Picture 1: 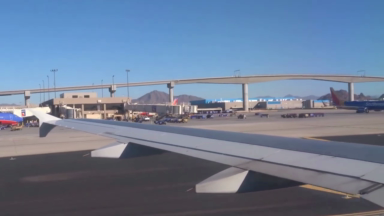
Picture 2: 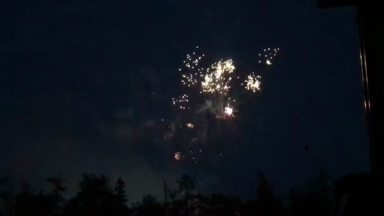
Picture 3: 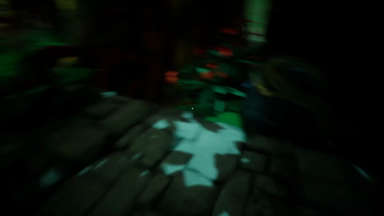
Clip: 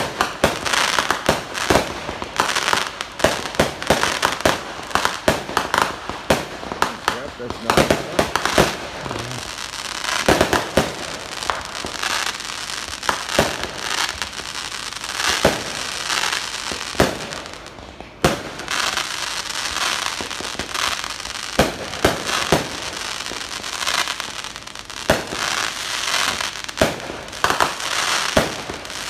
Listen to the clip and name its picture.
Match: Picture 2